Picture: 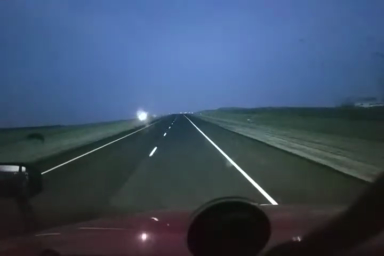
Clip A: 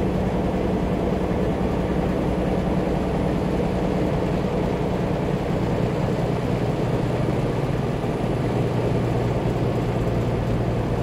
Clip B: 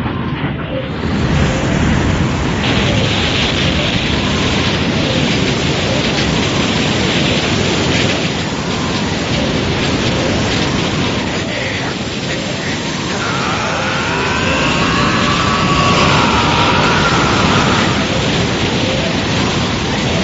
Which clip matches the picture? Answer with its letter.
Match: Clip A